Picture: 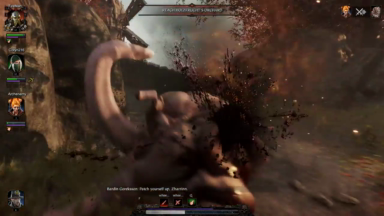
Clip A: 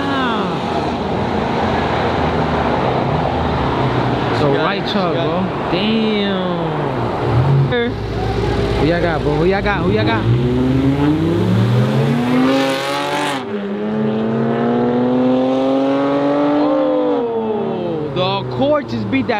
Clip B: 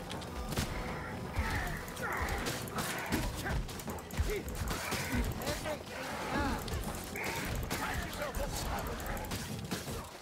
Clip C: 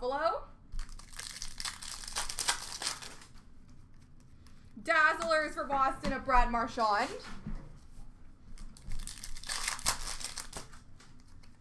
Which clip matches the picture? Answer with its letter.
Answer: B